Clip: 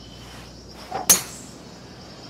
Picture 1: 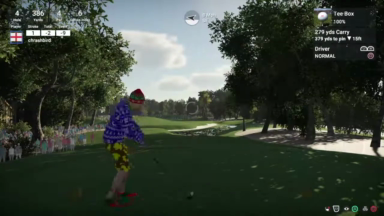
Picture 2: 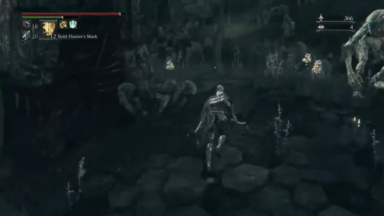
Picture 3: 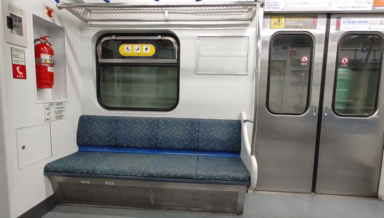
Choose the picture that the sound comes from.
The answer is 1